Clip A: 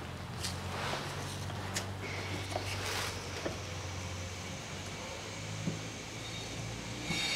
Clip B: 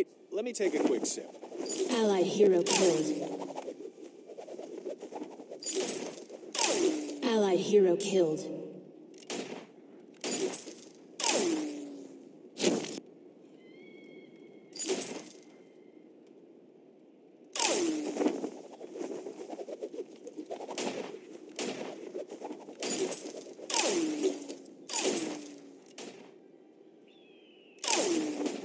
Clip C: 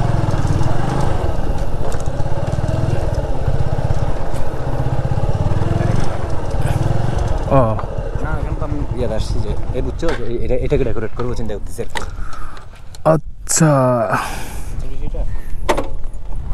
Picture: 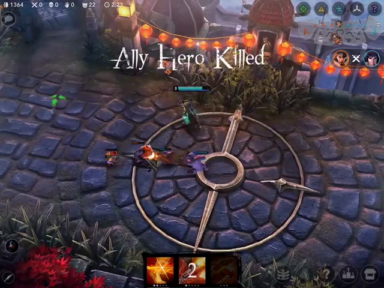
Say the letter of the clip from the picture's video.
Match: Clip B